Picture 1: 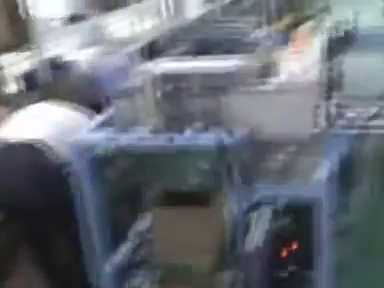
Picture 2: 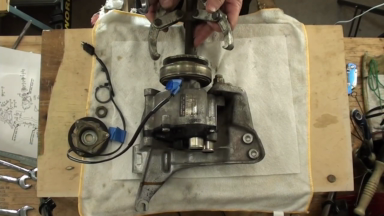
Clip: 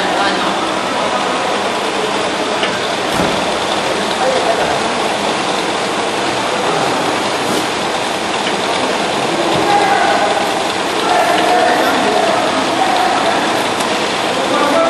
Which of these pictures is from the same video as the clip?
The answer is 1